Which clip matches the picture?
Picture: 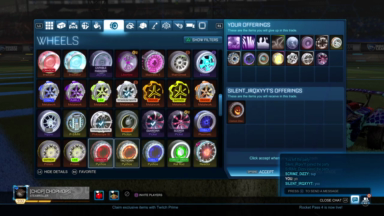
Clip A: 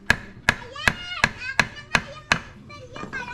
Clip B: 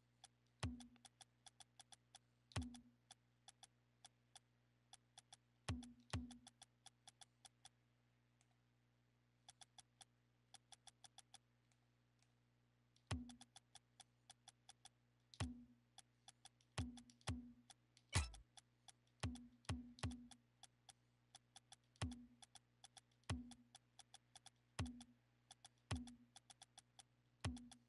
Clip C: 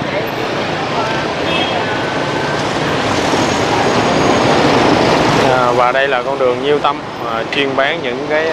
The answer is B